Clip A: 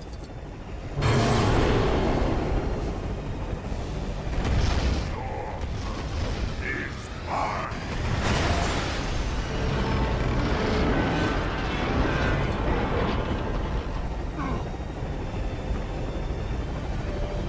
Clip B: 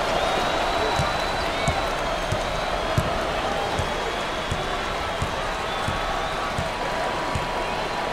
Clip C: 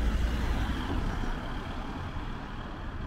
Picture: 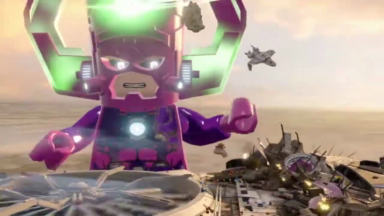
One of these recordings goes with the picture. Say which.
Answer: A